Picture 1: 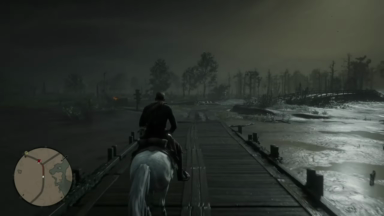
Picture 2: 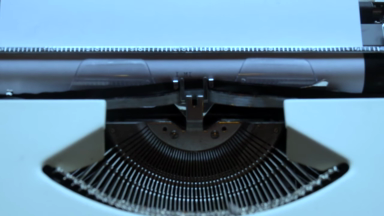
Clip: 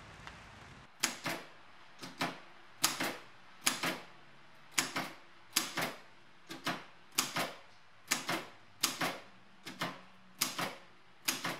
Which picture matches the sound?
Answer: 2